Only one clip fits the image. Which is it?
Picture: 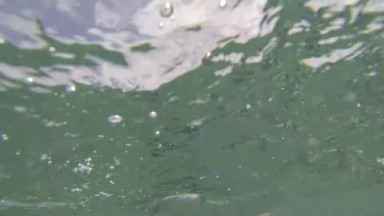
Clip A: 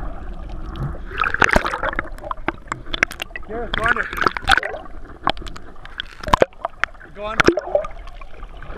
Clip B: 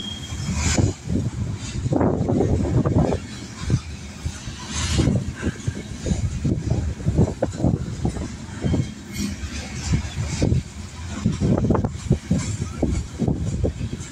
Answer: A